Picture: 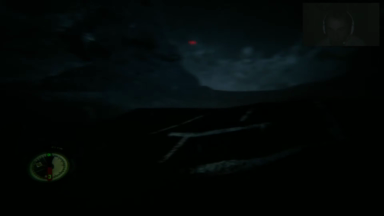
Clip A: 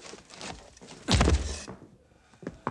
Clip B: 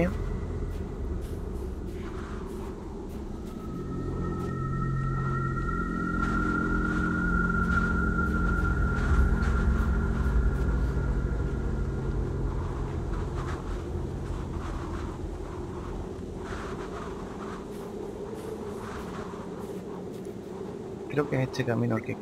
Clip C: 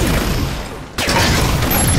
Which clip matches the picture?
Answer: B